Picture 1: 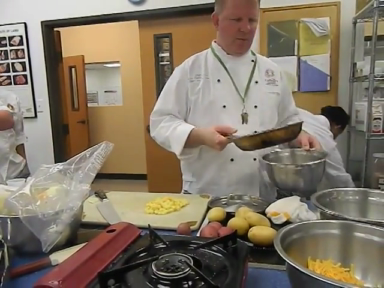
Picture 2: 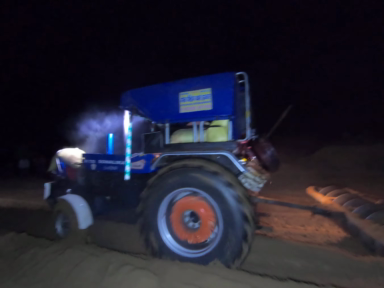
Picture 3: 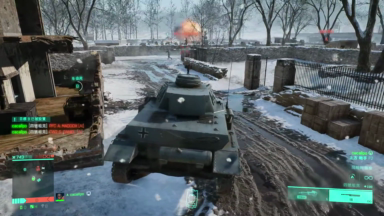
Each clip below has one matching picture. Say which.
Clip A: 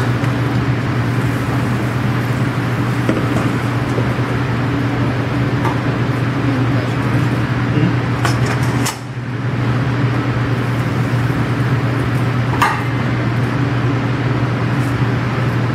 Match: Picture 1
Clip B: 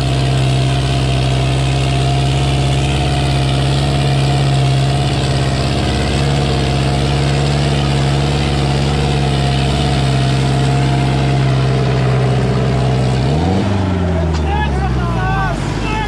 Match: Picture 2